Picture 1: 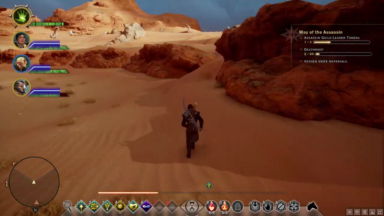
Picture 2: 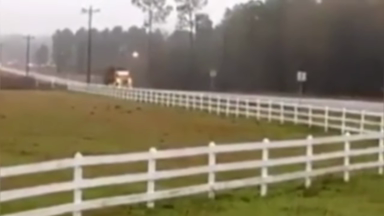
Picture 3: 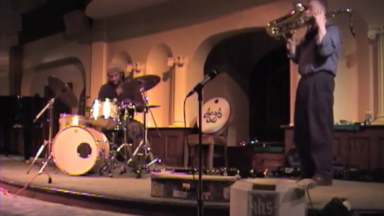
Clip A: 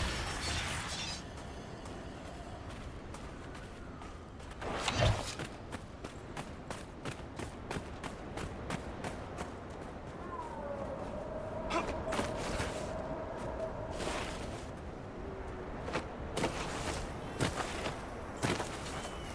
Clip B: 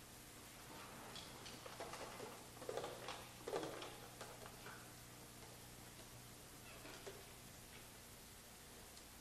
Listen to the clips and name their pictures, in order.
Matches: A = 1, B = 3